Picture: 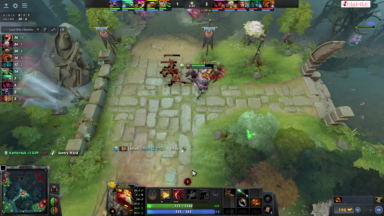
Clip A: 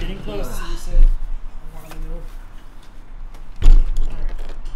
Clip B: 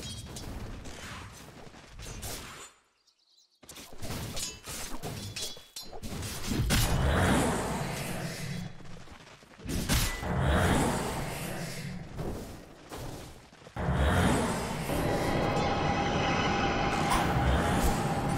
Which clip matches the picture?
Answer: B